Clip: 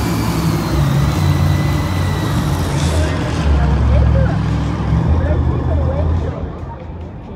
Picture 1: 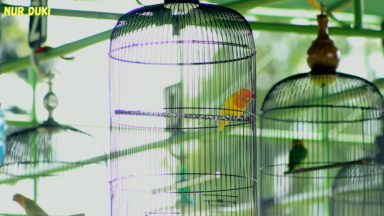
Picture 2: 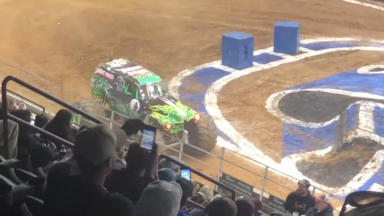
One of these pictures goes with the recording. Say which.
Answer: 2